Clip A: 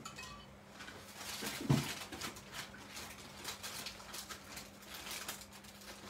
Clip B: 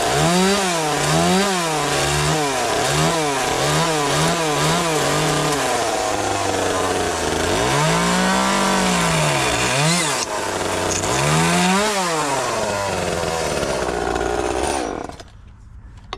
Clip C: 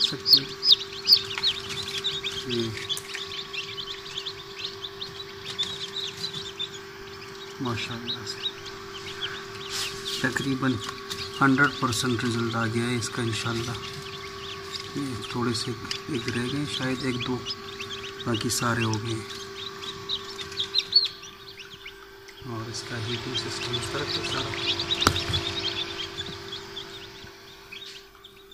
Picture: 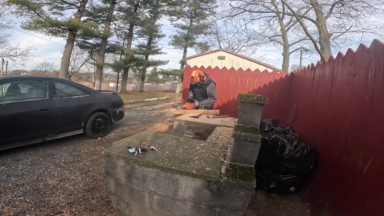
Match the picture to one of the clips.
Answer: B